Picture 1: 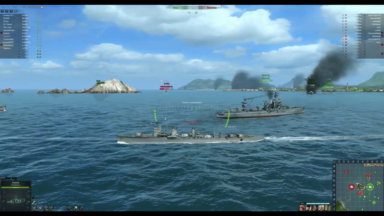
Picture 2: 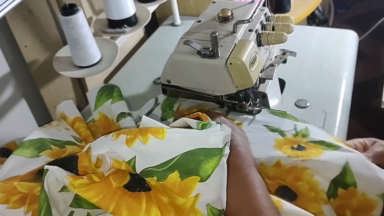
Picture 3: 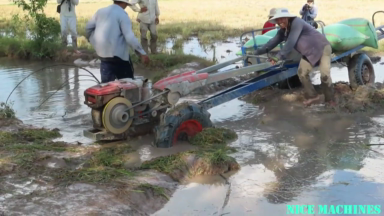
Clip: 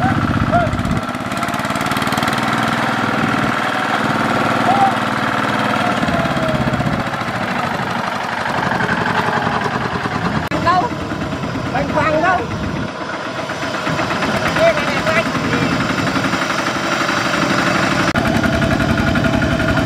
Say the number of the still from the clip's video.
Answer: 3